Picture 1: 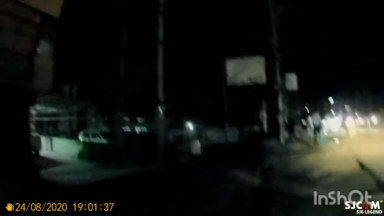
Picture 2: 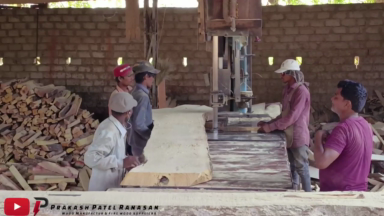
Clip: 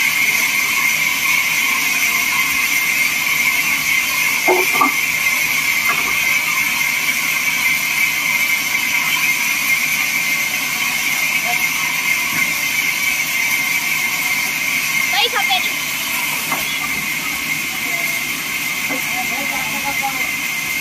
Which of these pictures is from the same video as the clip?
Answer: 2